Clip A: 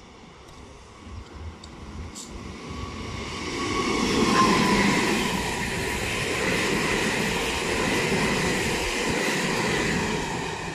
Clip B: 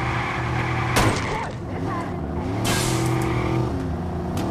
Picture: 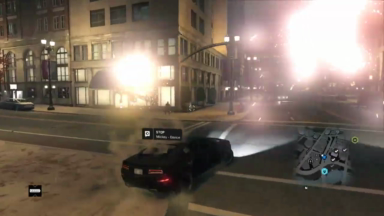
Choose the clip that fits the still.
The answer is B